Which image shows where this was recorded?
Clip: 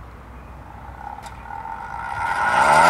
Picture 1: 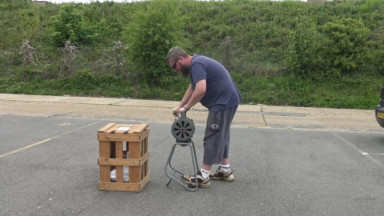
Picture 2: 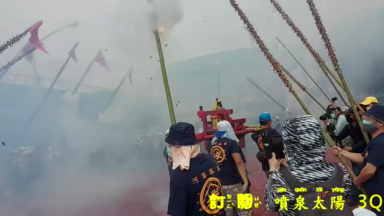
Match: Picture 1